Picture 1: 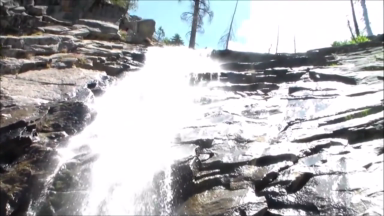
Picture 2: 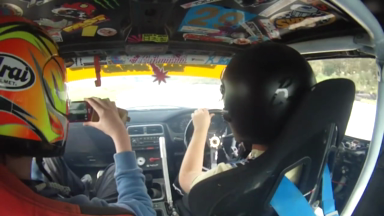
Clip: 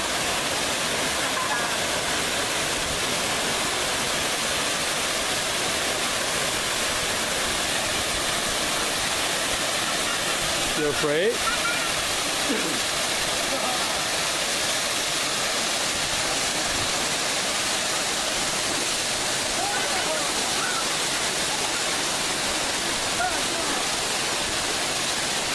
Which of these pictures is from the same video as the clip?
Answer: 1